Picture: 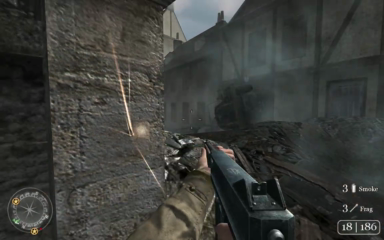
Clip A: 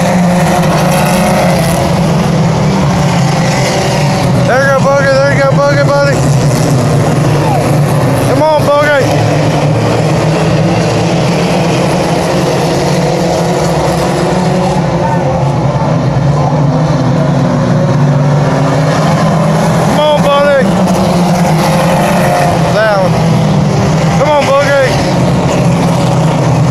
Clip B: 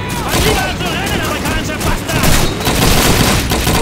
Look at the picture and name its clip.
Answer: B